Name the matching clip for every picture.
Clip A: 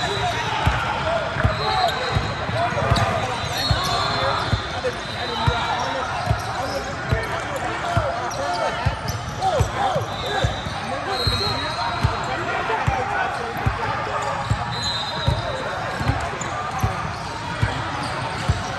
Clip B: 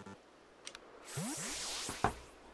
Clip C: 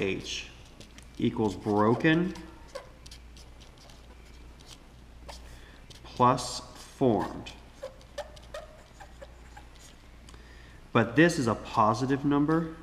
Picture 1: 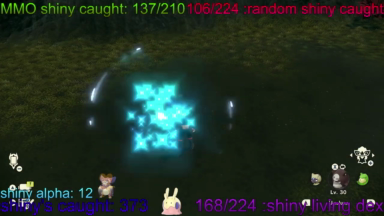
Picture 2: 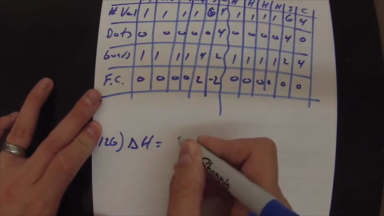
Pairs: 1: B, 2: C